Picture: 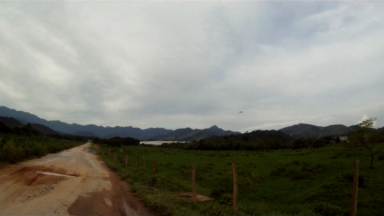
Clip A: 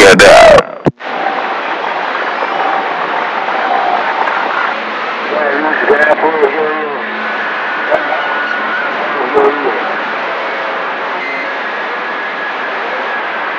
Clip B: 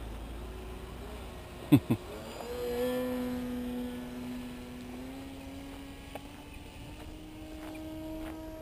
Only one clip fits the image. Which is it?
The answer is B